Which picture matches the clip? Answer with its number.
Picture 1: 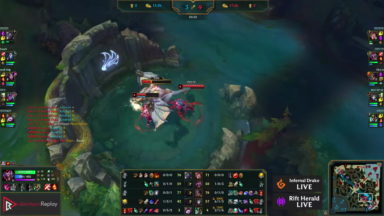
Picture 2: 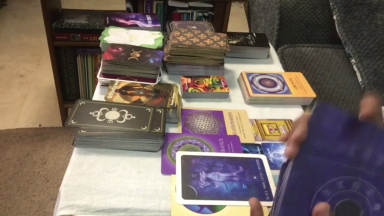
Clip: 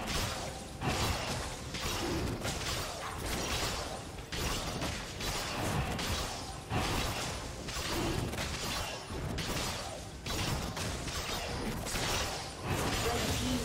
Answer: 1